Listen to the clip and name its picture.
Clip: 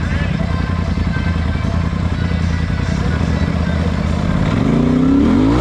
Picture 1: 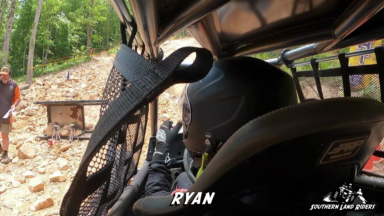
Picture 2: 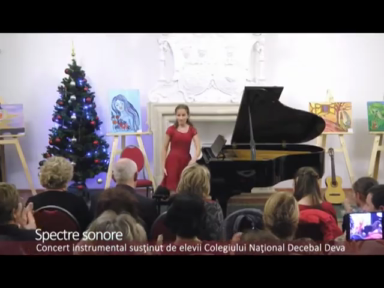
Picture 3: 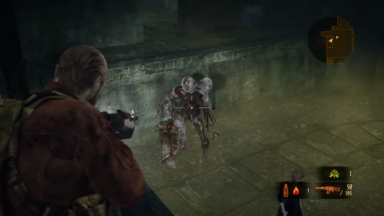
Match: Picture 1